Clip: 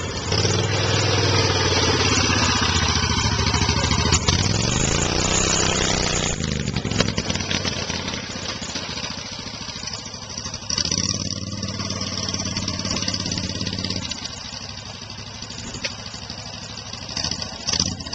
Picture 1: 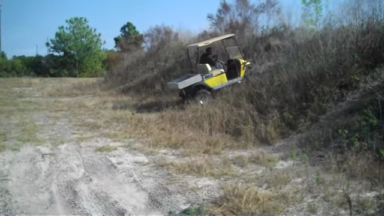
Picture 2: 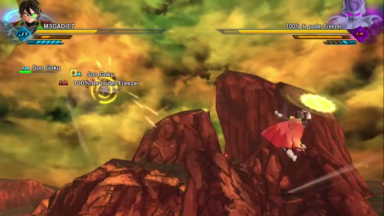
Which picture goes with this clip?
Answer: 1